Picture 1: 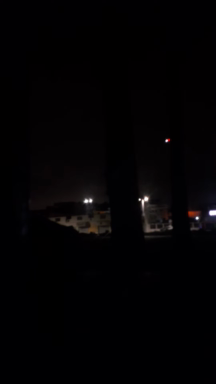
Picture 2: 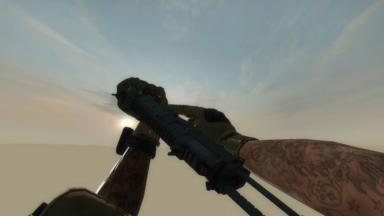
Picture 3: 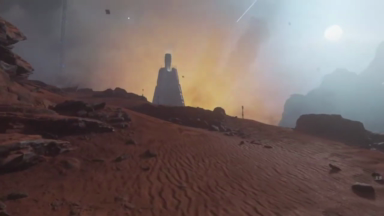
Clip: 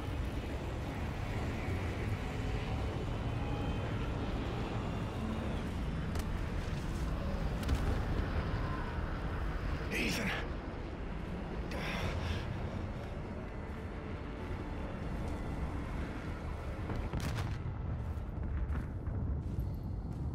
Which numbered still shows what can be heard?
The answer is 3